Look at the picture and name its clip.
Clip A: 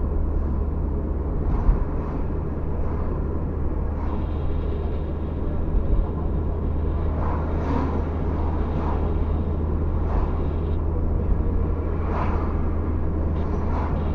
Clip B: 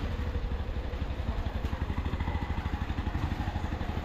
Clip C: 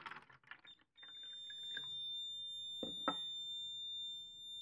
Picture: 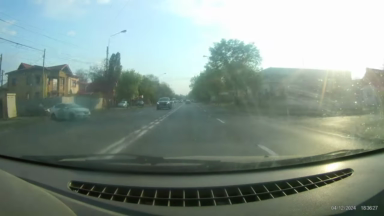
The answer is A